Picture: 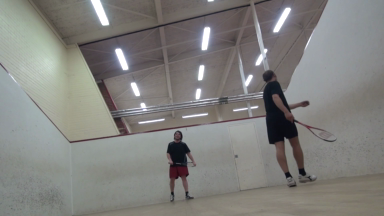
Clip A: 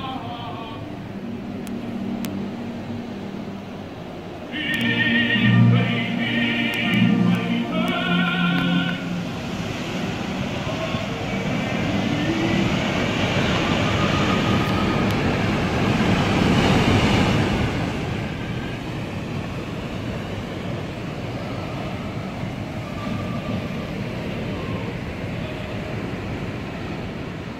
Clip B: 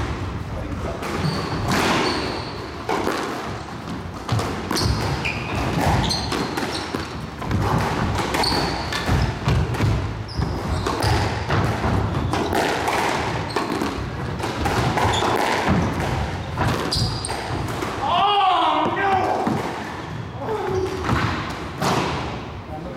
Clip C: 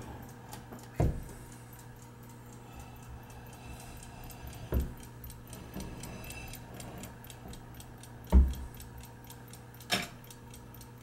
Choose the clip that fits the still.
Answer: B